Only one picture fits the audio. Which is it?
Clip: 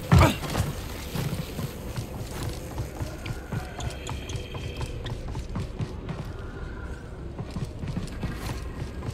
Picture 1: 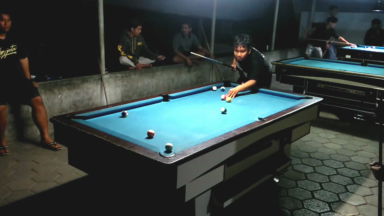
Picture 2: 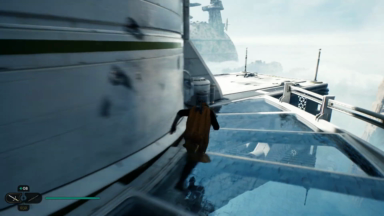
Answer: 2